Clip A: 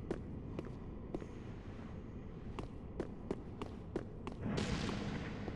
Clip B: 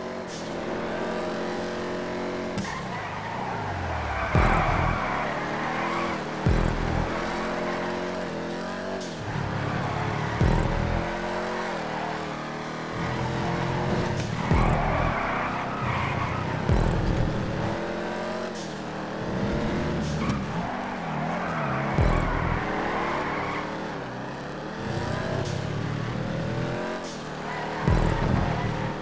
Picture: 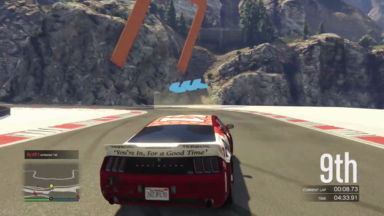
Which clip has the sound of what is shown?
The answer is B